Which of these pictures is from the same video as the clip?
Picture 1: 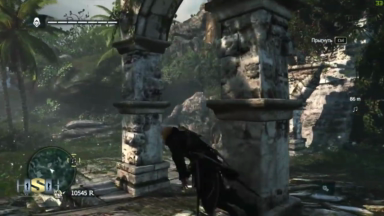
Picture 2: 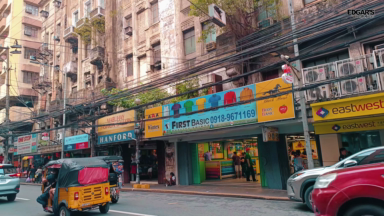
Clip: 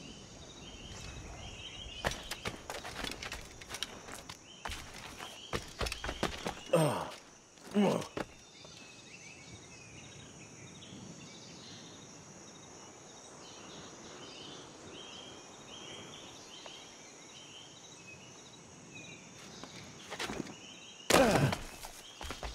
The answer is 1